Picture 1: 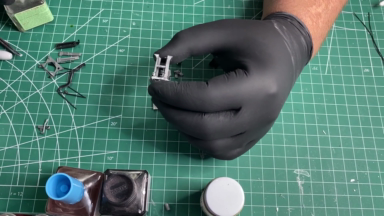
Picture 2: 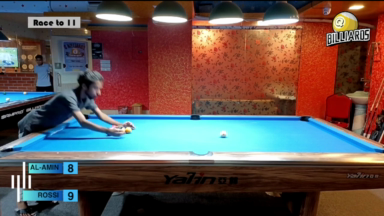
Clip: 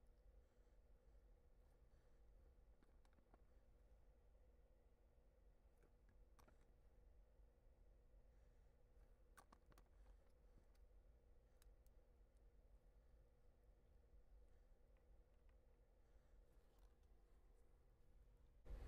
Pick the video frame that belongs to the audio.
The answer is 1